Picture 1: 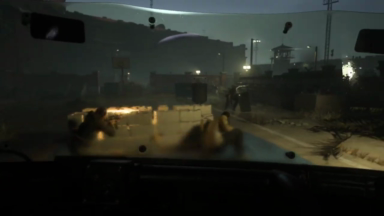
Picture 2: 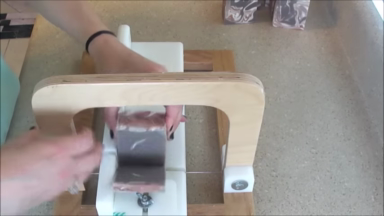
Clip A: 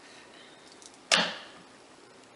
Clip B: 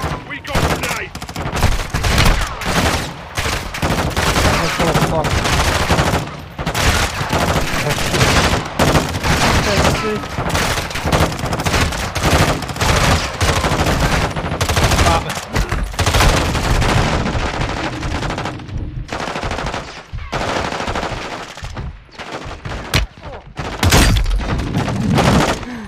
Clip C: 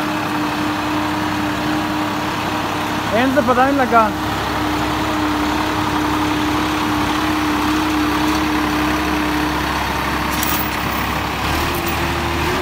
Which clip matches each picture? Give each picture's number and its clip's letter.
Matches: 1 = B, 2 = A